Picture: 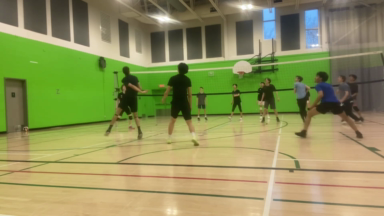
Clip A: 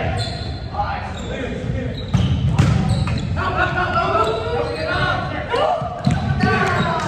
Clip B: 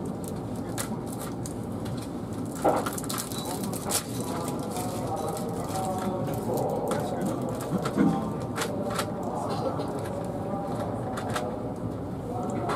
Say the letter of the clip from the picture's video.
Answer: A